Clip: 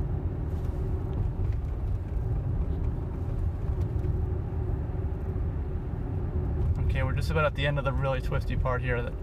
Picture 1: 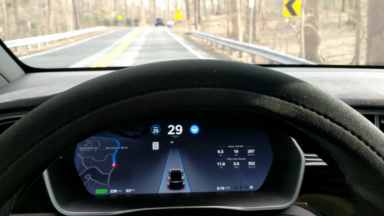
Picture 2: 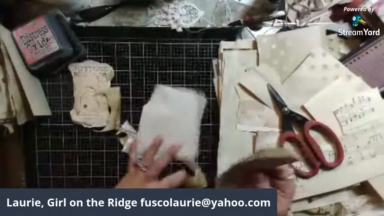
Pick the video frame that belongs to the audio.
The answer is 1